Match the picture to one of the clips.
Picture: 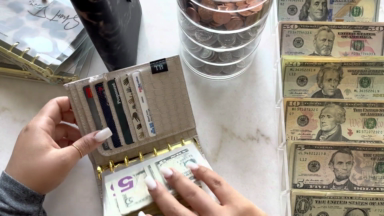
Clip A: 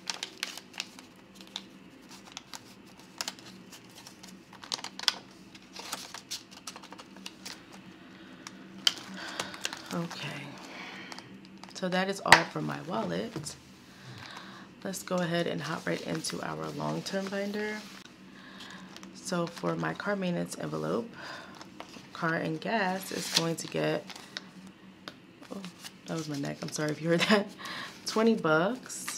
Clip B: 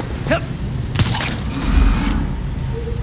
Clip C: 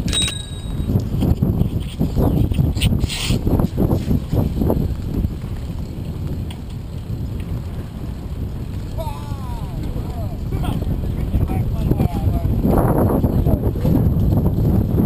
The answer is A